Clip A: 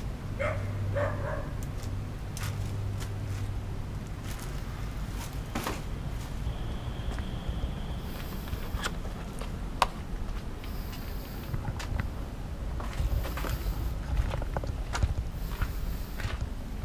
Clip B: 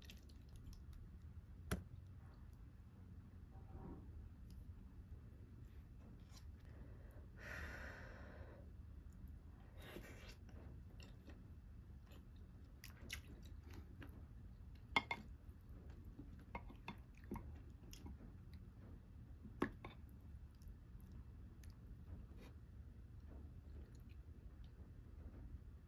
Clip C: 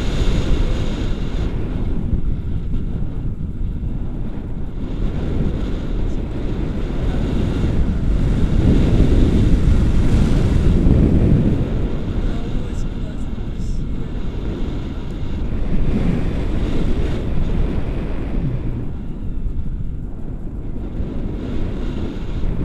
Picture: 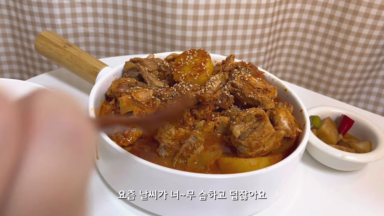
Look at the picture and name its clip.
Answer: B